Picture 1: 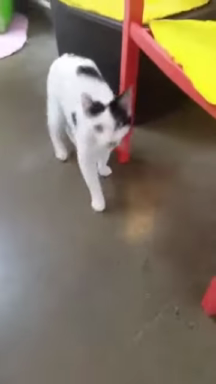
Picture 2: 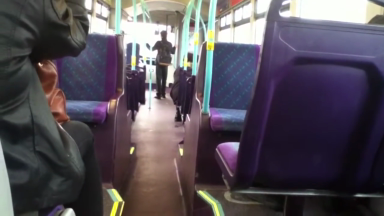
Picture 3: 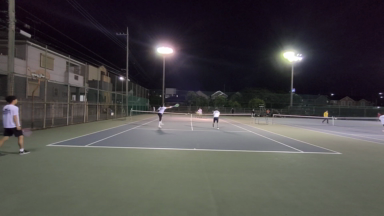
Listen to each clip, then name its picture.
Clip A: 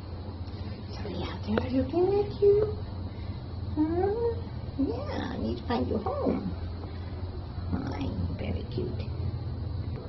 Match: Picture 1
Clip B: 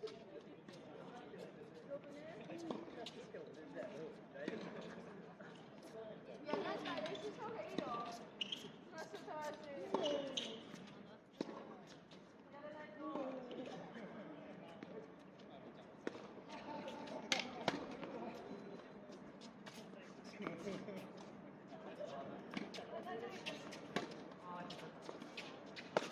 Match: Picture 3